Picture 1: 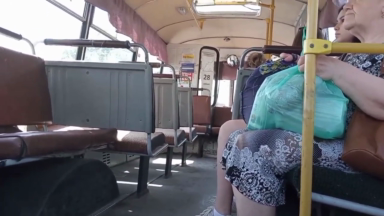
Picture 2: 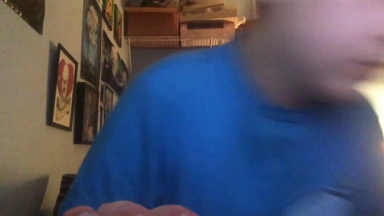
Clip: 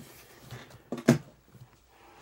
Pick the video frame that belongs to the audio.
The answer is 2